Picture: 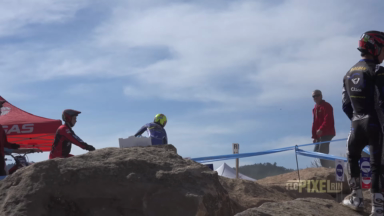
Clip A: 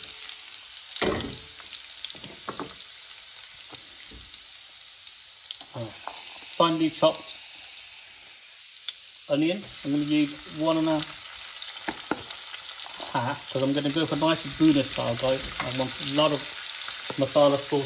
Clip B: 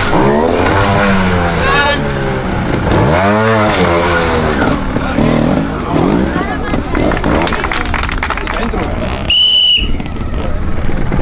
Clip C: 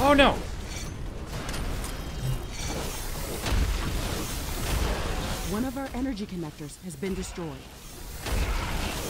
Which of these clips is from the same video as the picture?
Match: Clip B